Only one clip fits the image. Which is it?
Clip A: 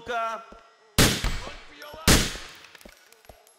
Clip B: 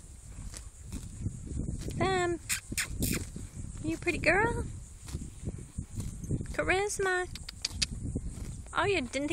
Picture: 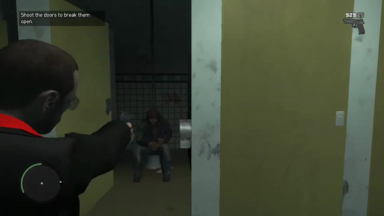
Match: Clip A